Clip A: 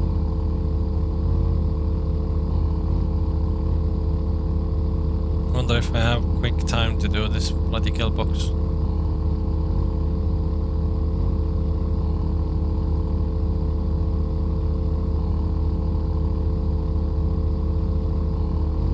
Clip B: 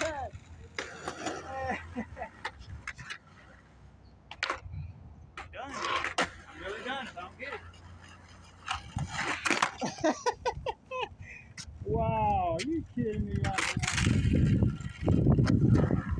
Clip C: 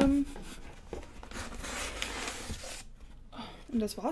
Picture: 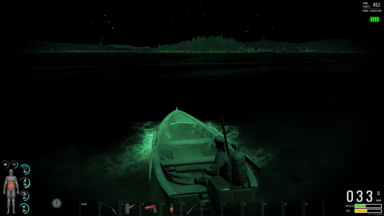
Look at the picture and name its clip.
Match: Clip A